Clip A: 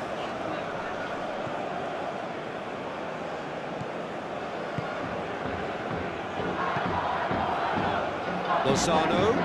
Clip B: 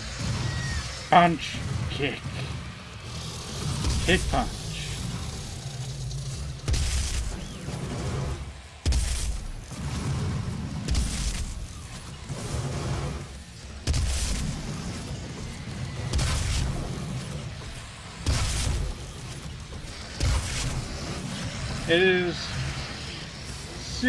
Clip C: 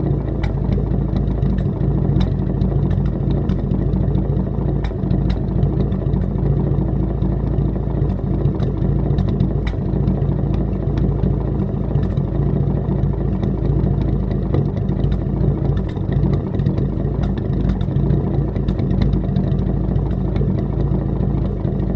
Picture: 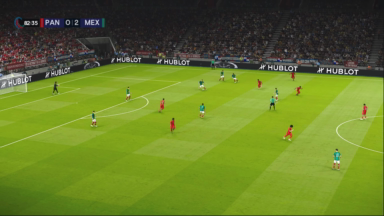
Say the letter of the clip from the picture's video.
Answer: A